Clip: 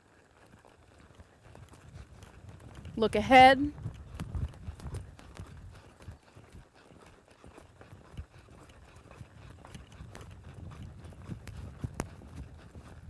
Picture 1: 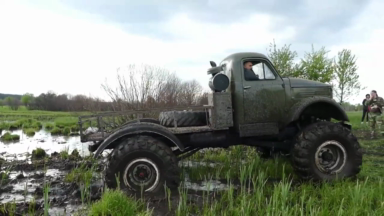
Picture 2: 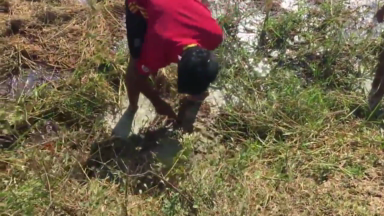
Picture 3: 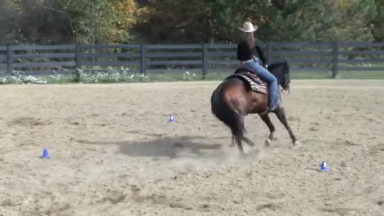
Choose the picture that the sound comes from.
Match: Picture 3